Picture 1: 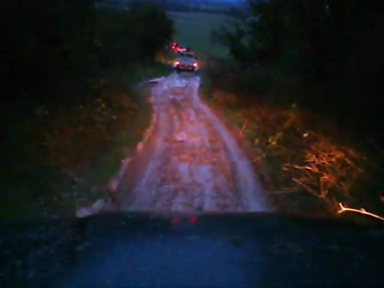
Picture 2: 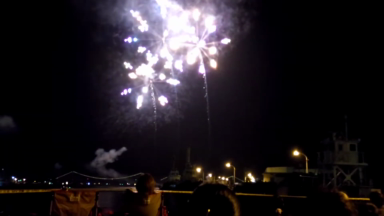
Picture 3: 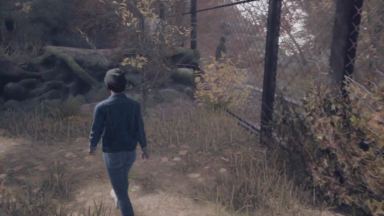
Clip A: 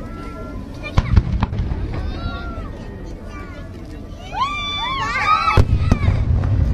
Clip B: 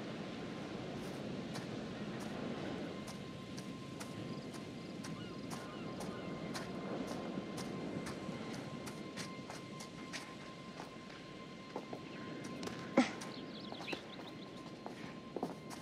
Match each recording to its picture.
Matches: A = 2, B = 3